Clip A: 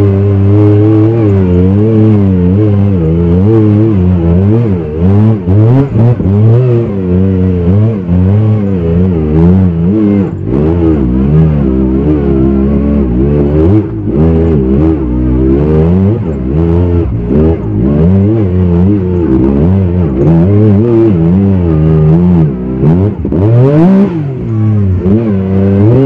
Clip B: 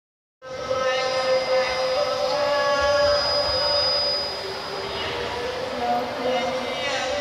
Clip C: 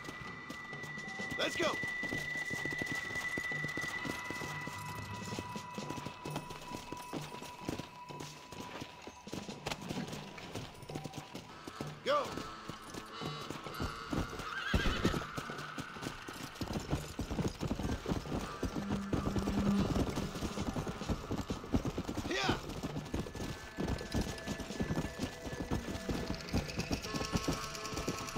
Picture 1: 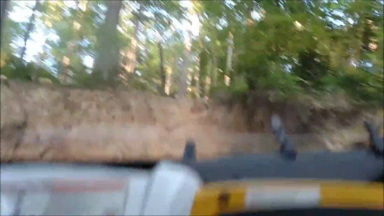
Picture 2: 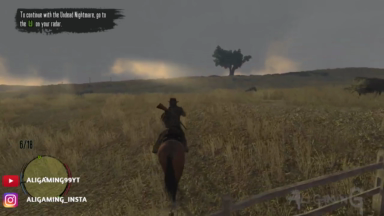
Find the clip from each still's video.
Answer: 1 A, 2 C